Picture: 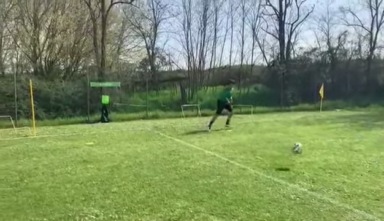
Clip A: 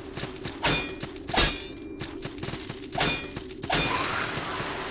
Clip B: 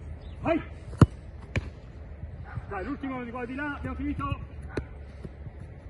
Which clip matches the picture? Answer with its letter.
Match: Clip B